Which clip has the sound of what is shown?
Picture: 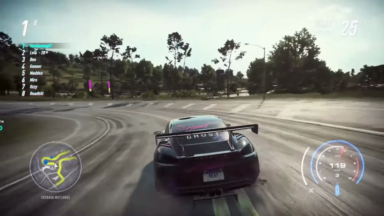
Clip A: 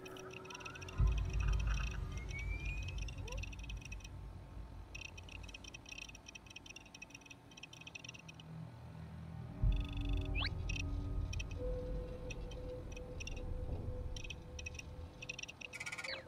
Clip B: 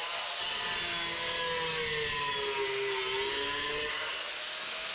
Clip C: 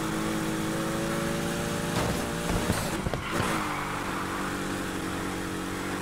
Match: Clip C